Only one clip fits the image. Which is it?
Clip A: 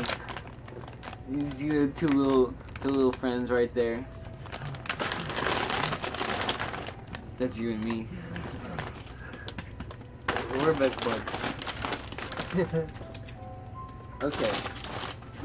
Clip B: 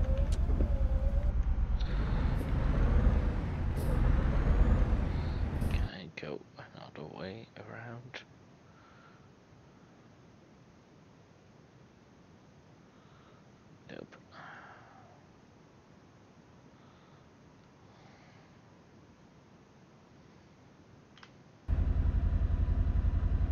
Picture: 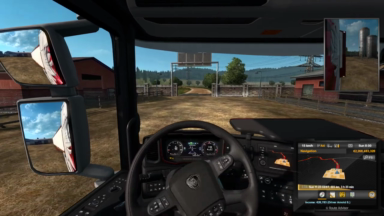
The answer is B